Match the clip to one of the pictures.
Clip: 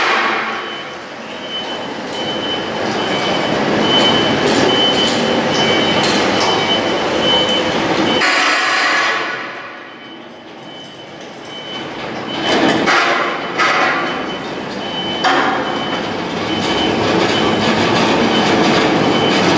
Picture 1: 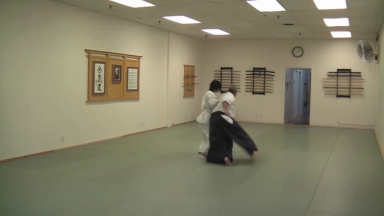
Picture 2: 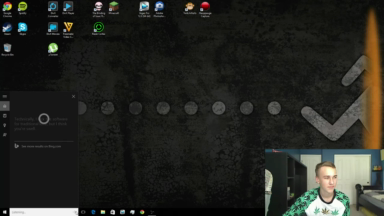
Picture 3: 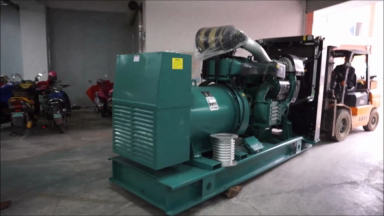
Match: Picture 3